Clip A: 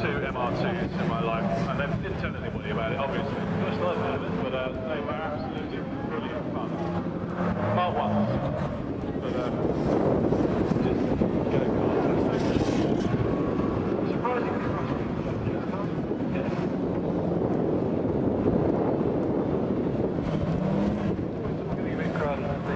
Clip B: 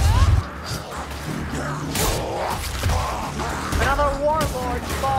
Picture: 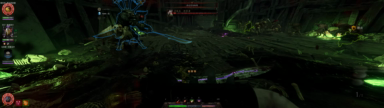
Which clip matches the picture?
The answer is B